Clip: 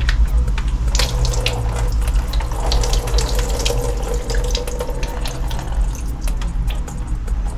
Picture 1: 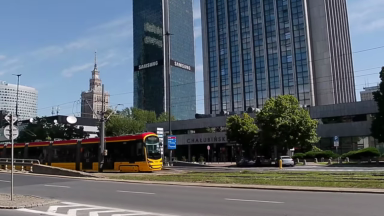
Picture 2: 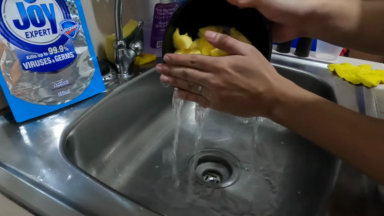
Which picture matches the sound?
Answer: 2